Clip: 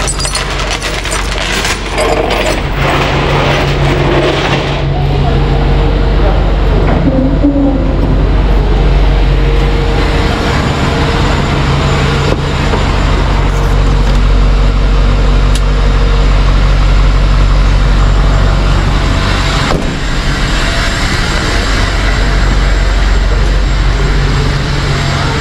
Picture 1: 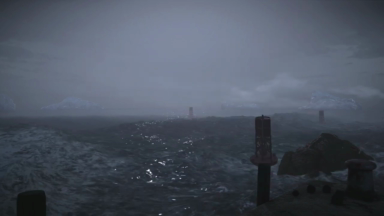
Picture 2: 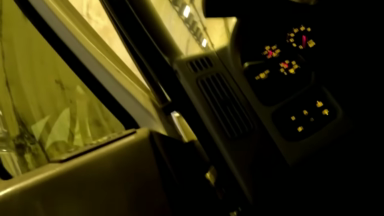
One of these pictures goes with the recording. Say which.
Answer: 2